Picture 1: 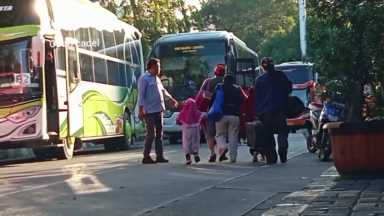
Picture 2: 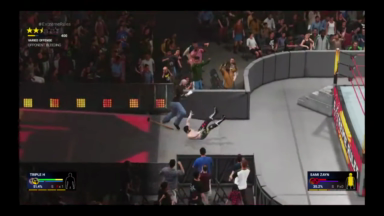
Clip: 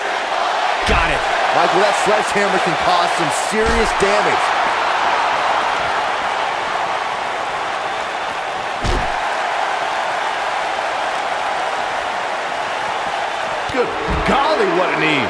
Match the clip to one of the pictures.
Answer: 2